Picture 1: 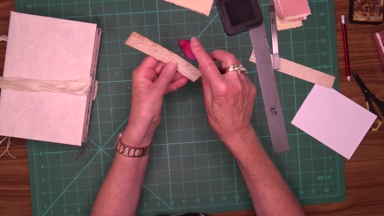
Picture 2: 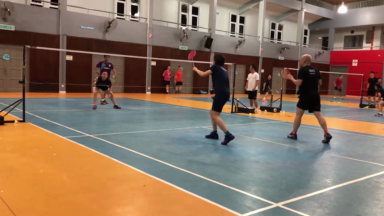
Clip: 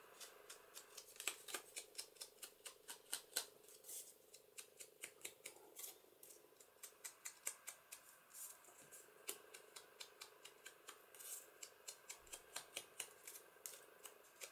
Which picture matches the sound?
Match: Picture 1